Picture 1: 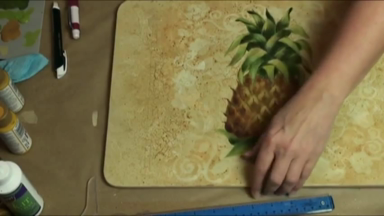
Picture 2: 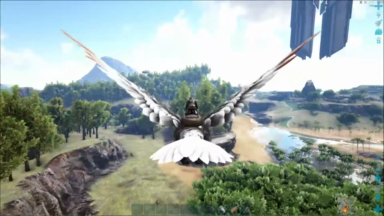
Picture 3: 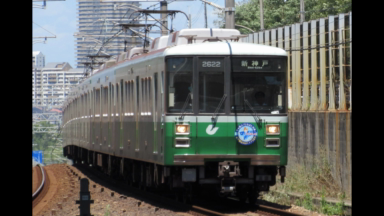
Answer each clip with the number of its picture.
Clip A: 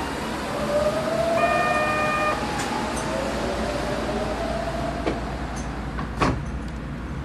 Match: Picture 3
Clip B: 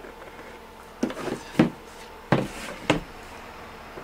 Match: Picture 1